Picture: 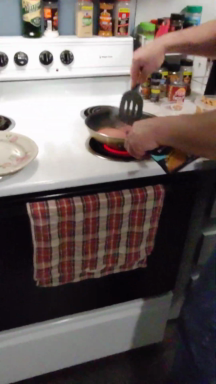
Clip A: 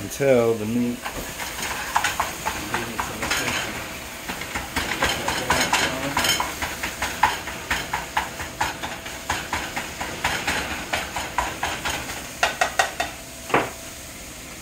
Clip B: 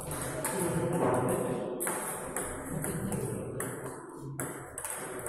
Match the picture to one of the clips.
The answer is A